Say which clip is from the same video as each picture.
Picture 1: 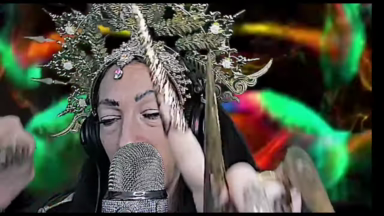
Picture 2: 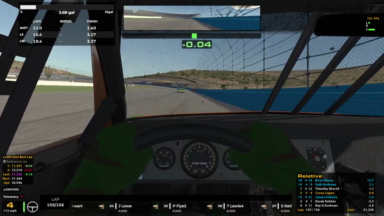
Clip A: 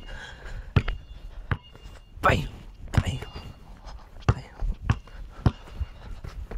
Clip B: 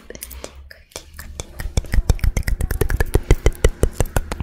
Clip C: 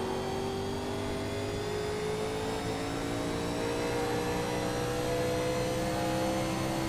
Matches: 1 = B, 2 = C